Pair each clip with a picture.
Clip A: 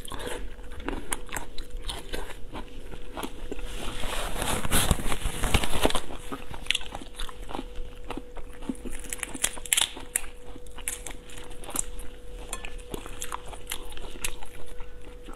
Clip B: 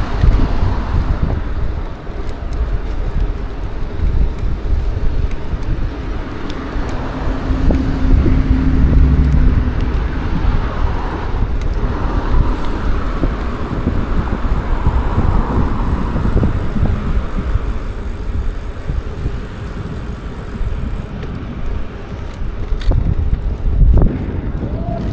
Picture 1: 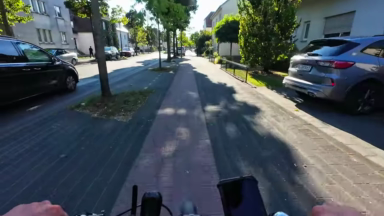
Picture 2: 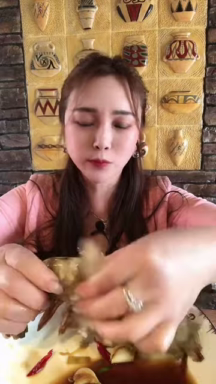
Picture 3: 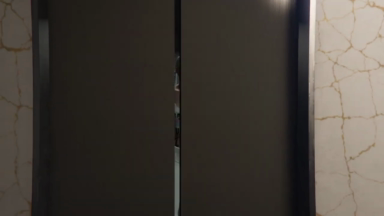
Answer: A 2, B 1